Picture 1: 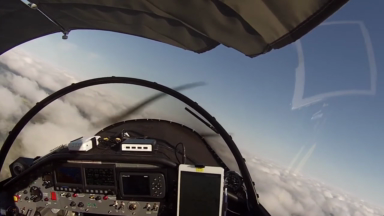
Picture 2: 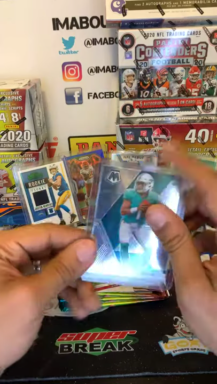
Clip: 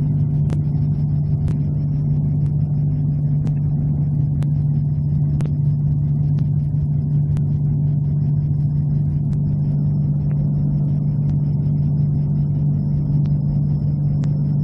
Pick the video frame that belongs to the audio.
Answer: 1